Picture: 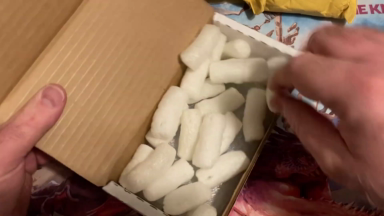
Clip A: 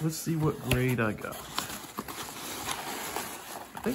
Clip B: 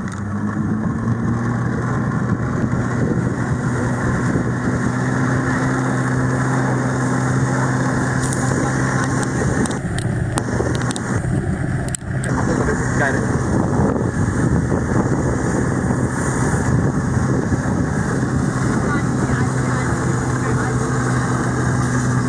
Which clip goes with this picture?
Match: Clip A